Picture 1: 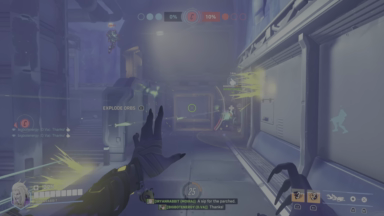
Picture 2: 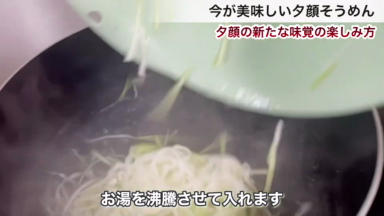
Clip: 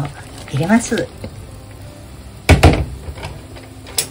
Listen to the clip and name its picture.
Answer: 2